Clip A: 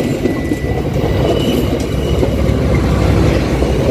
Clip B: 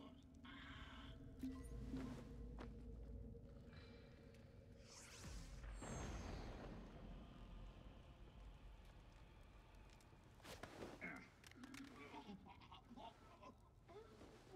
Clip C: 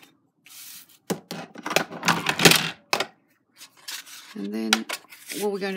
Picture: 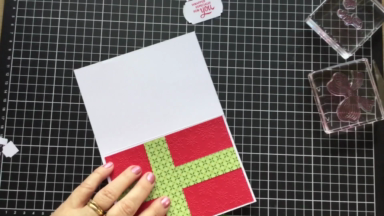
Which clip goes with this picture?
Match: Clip C